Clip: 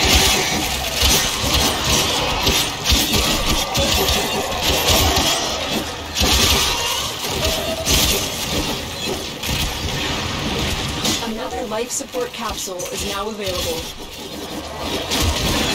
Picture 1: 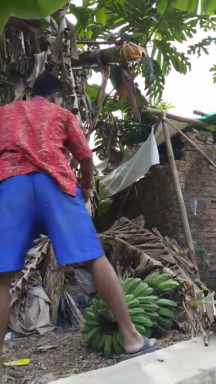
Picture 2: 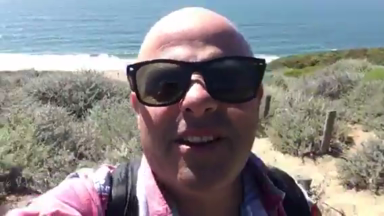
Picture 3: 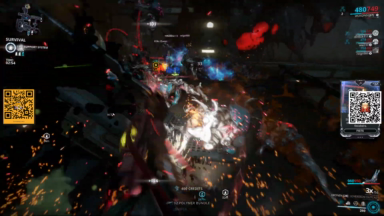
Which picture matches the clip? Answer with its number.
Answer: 3